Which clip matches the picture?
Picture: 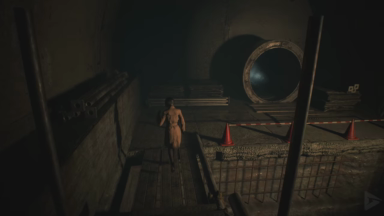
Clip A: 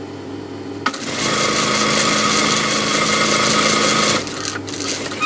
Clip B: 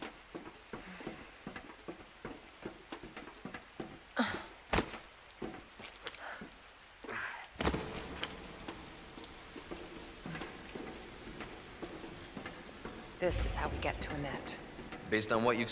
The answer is B